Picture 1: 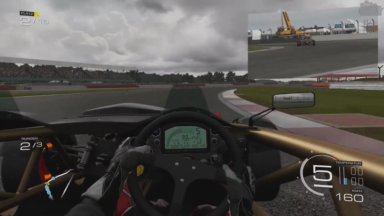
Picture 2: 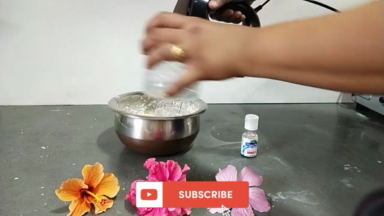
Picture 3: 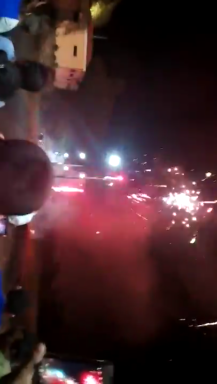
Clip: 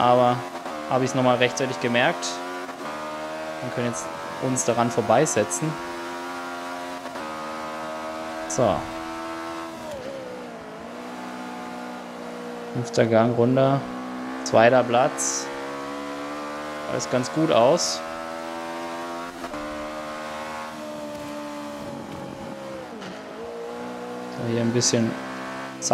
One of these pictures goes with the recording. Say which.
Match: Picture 1